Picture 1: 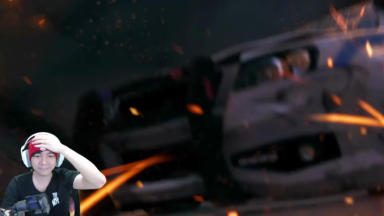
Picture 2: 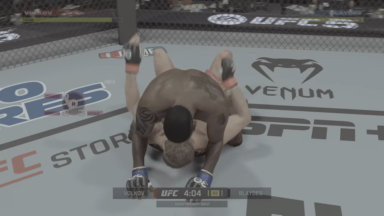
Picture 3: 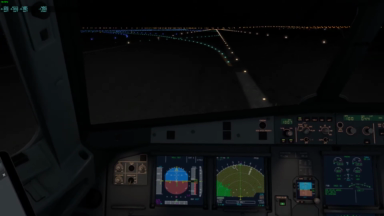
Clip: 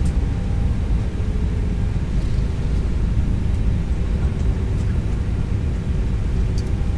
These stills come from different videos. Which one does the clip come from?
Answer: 3